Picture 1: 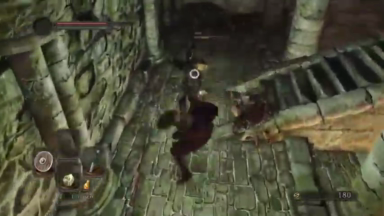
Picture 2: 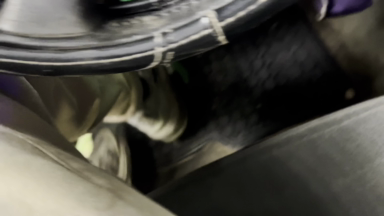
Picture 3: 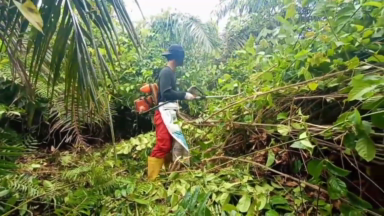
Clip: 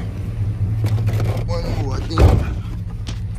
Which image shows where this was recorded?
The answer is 2